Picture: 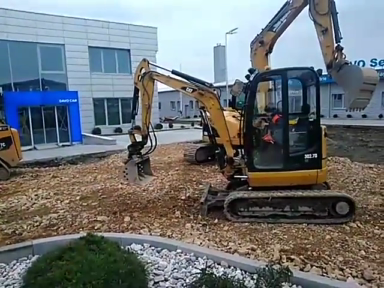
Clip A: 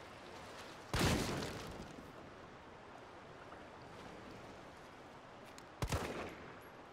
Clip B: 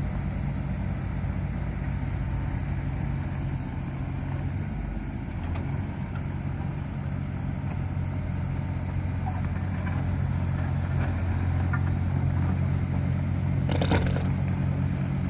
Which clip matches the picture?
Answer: B